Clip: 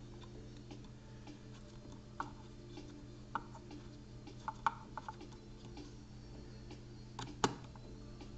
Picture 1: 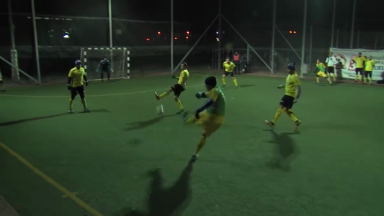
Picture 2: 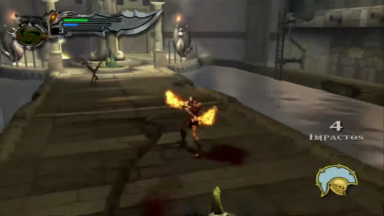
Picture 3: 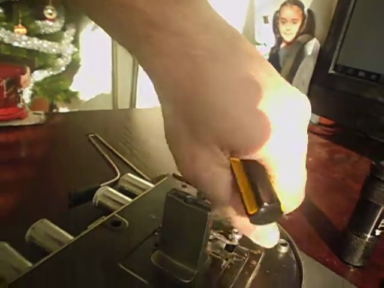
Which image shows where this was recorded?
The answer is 3